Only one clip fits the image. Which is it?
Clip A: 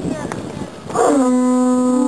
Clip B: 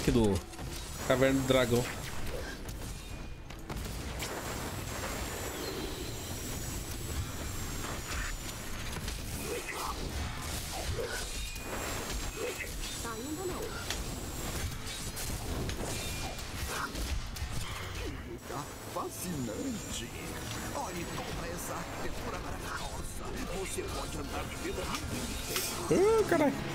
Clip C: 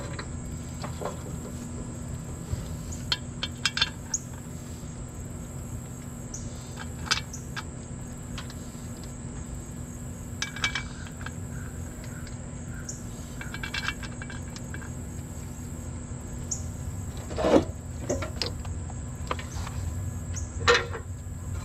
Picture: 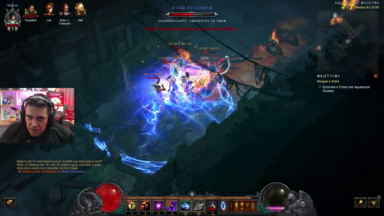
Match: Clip B